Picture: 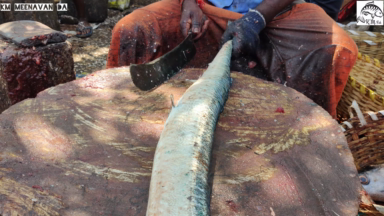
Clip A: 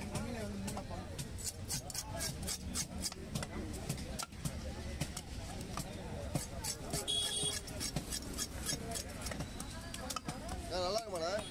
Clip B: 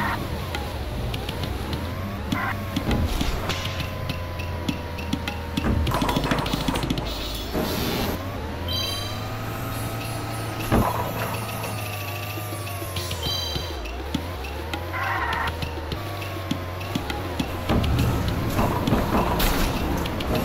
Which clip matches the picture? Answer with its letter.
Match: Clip A